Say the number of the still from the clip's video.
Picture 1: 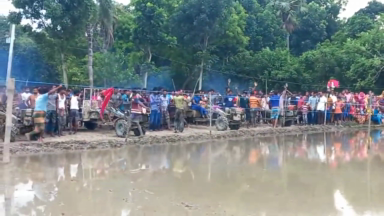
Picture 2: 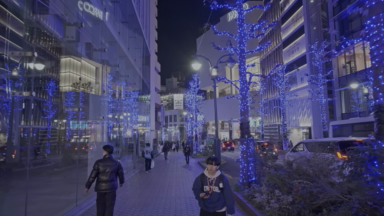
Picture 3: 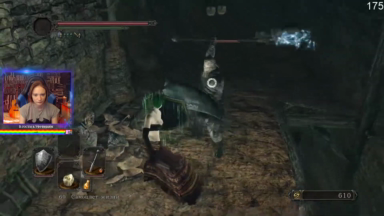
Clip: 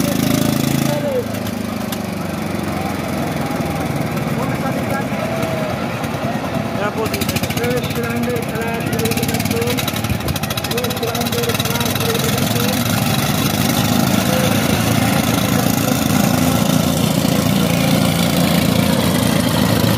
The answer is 1